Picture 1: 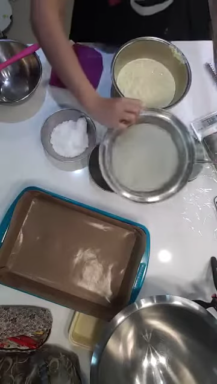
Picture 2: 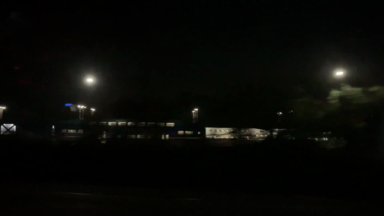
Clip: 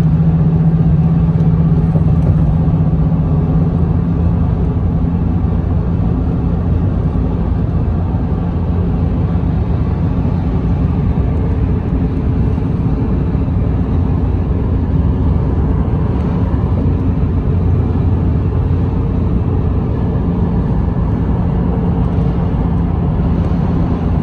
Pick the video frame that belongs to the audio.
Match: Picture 2